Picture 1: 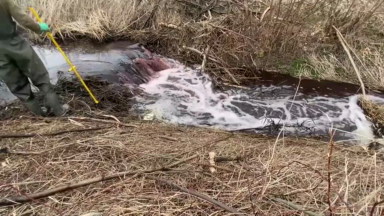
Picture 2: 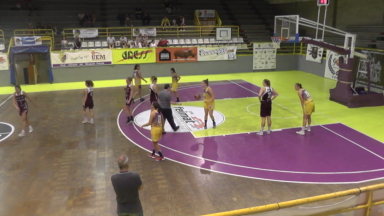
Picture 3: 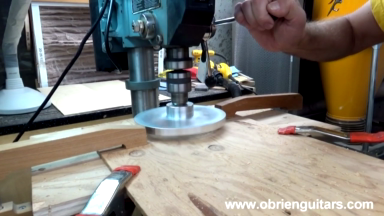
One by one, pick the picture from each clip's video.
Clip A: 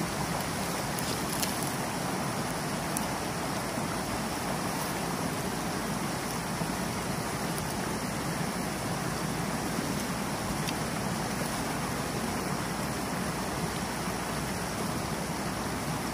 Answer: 1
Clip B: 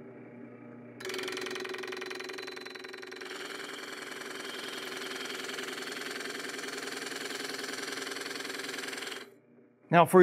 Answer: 3